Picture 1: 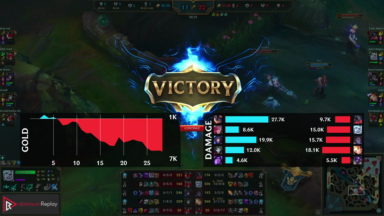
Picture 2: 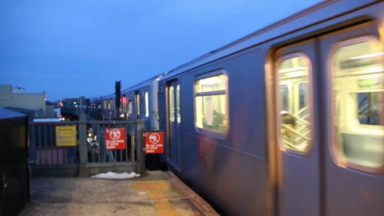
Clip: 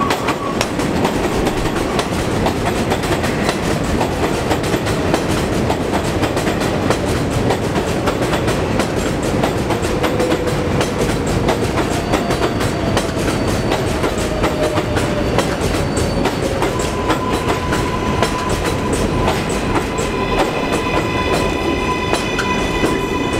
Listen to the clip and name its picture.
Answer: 2